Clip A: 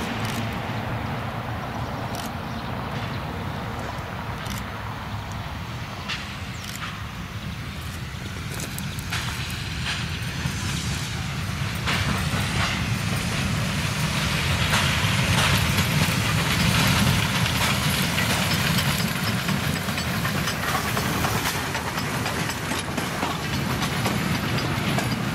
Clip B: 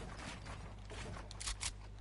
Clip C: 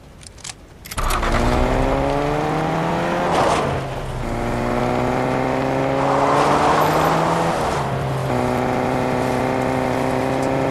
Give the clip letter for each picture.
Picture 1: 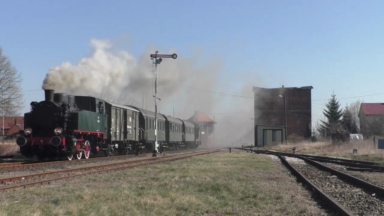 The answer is A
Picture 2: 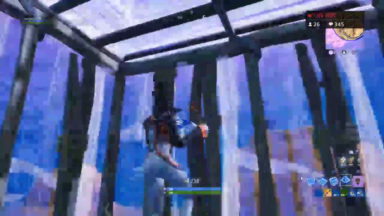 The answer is B